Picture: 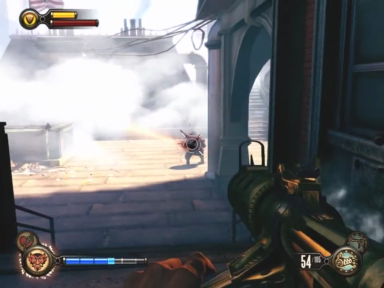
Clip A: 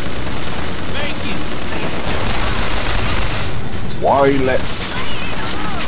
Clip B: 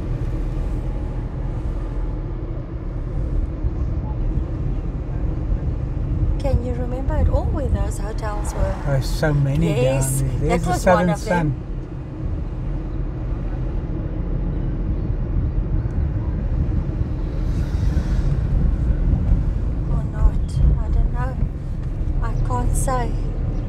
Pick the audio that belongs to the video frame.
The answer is A